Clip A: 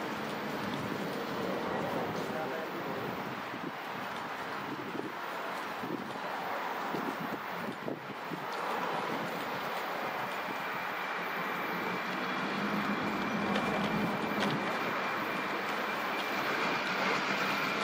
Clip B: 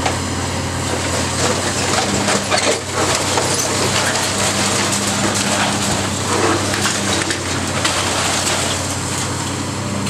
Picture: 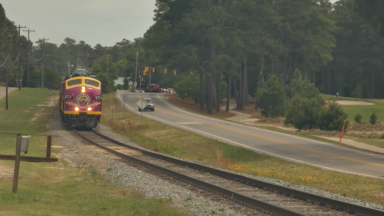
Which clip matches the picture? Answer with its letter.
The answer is A